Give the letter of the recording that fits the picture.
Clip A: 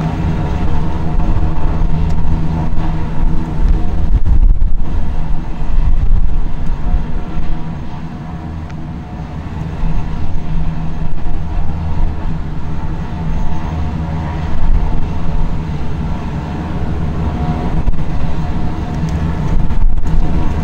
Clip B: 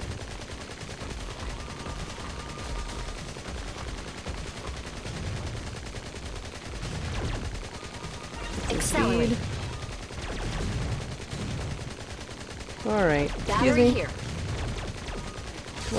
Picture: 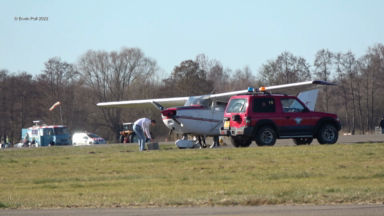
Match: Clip A